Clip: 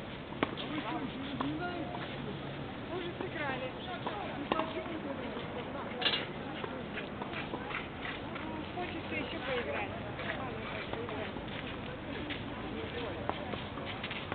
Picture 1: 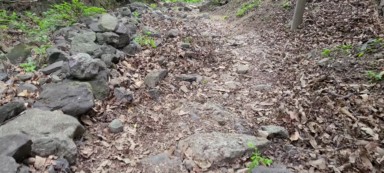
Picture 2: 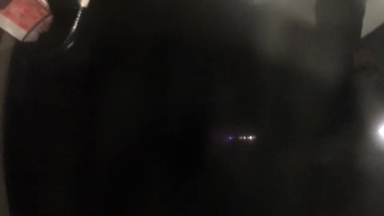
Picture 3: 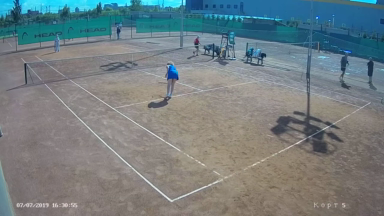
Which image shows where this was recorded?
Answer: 3